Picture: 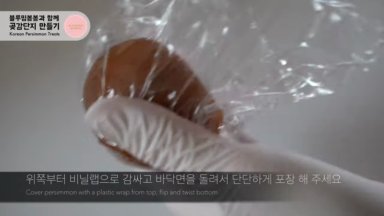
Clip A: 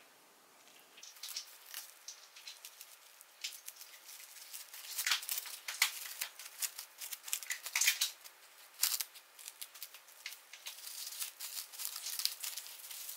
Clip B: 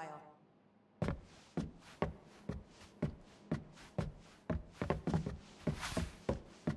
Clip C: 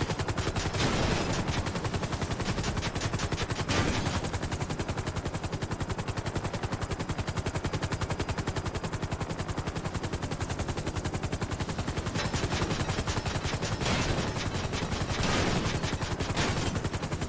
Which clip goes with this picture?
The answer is A